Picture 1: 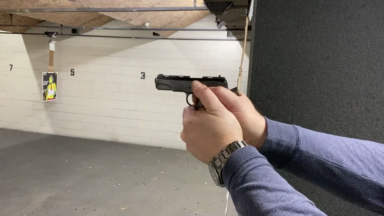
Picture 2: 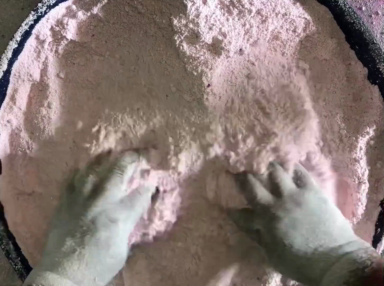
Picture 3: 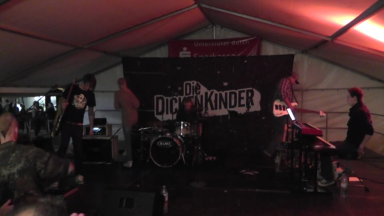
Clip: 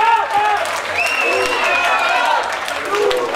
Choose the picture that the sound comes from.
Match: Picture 3